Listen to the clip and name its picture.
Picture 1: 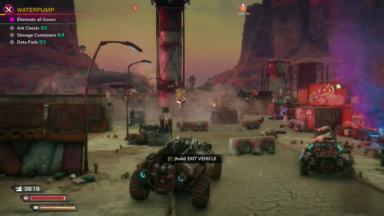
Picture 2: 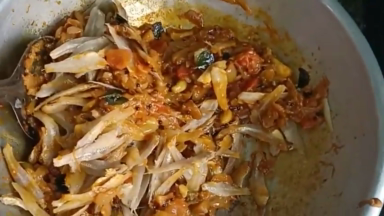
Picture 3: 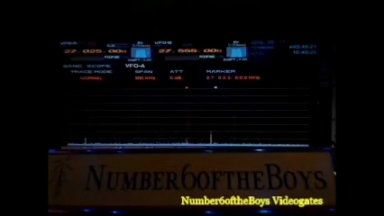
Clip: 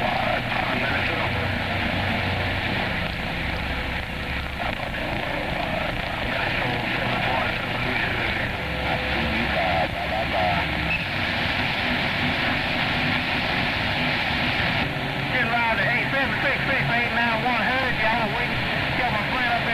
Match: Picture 3